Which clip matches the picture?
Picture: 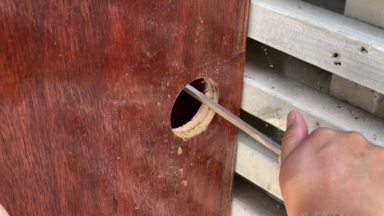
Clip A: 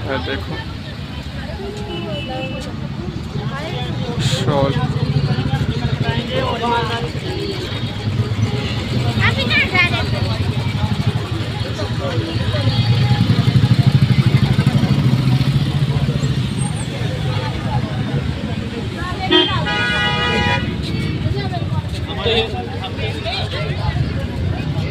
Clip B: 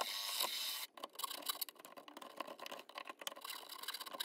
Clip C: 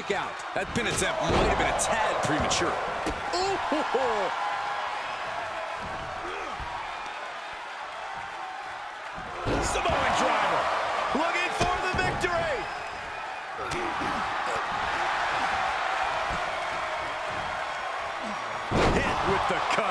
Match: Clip B